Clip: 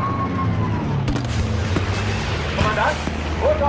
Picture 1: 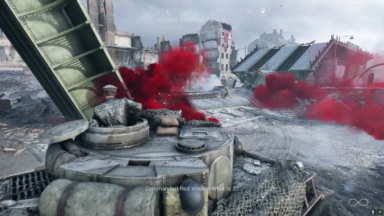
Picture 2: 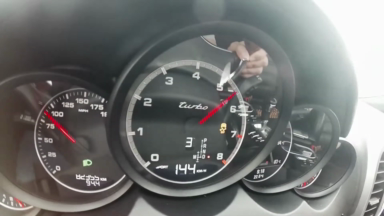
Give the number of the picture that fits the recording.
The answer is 1